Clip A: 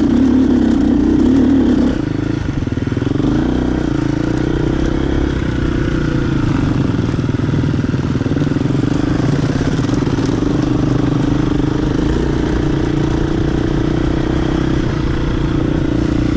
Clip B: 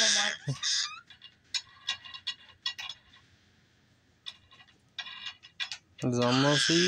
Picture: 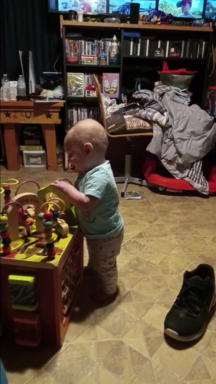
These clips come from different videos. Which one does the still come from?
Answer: B